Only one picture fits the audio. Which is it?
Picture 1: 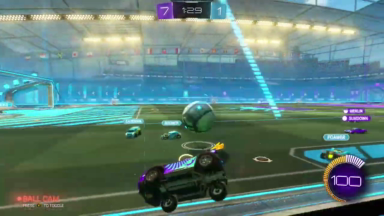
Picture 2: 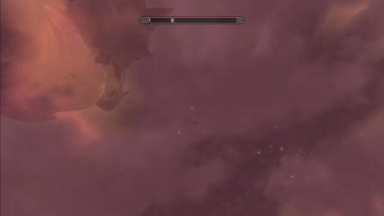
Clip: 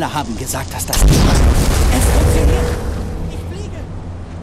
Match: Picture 2